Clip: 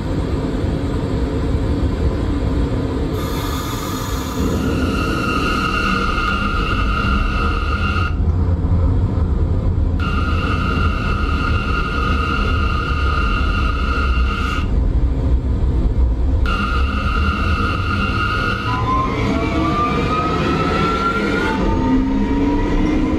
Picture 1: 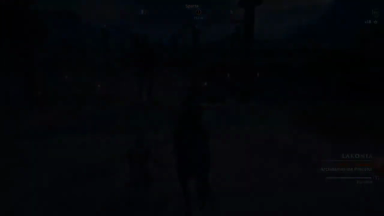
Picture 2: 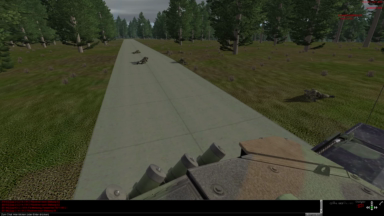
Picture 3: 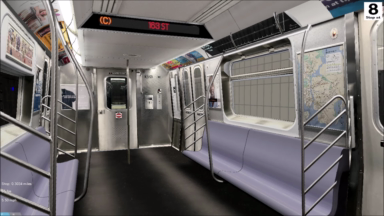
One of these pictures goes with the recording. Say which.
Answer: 3